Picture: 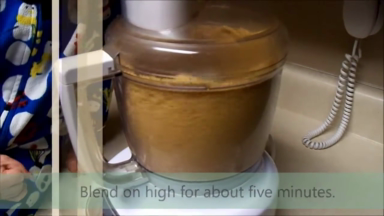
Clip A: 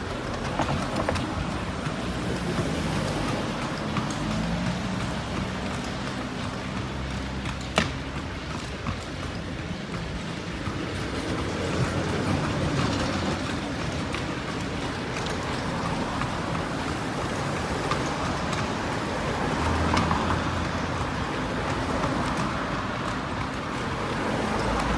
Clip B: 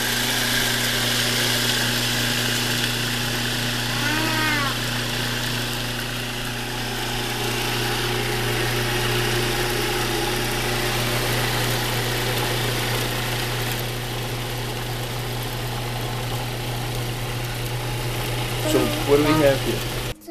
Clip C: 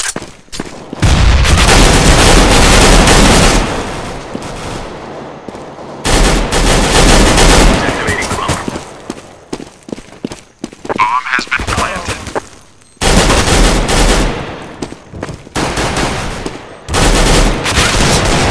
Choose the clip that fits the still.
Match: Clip B